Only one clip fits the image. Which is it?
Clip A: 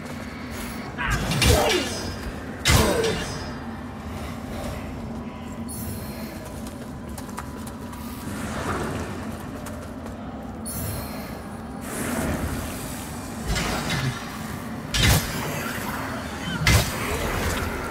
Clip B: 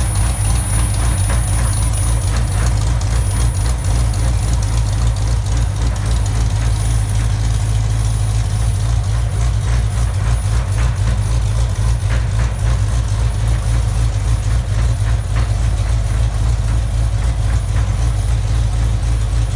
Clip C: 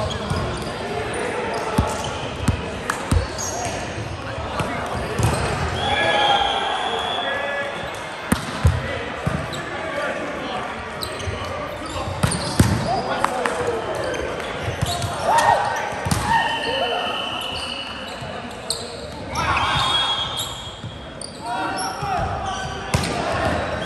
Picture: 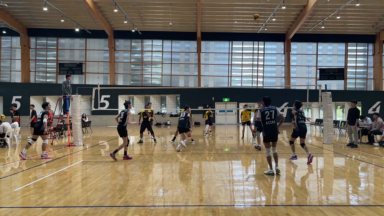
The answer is C